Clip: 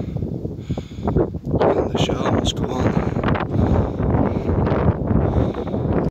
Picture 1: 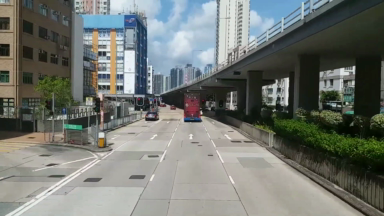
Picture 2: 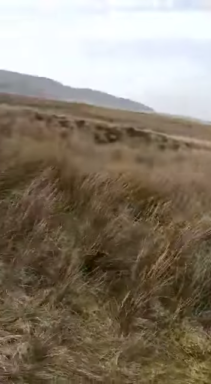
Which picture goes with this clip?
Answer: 2